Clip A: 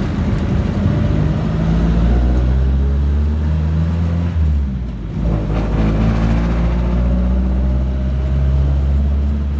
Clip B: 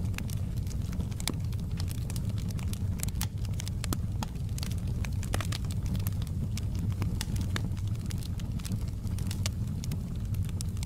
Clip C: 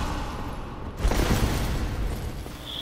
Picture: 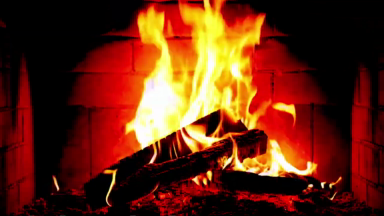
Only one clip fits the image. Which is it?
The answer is B